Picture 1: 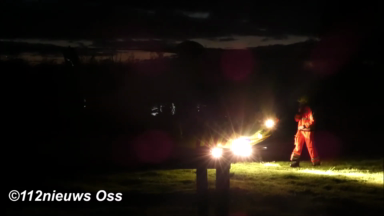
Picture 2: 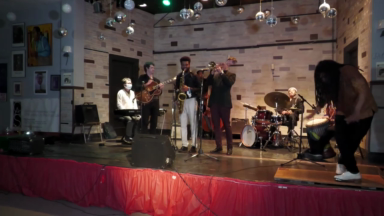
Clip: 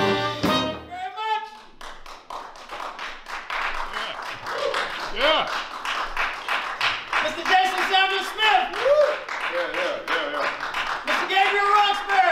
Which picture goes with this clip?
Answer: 2